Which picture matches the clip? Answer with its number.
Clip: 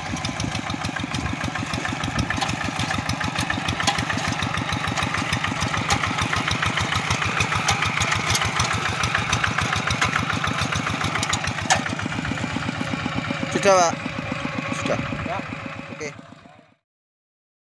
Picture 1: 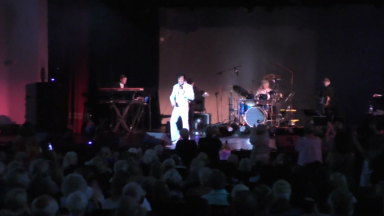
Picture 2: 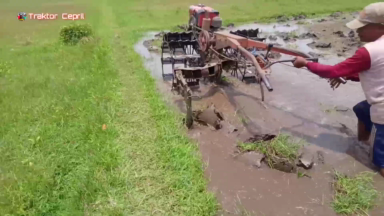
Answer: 2